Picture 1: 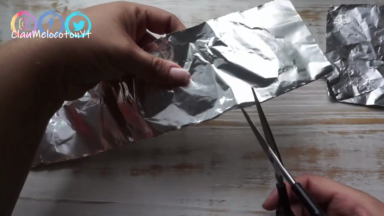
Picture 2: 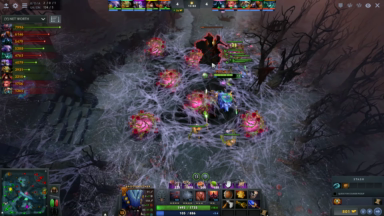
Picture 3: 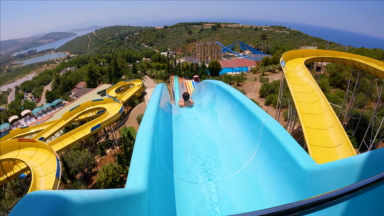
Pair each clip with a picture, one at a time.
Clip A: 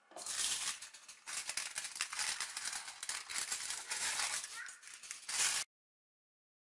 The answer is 1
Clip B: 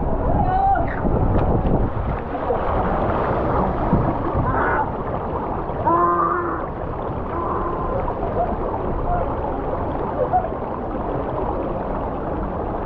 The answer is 3